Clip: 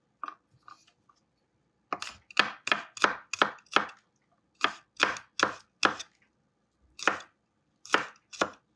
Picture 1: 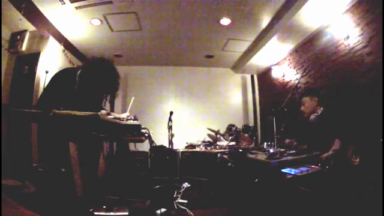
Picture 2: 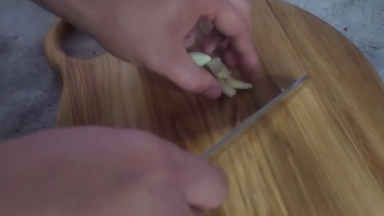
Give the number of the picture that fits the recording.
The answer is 2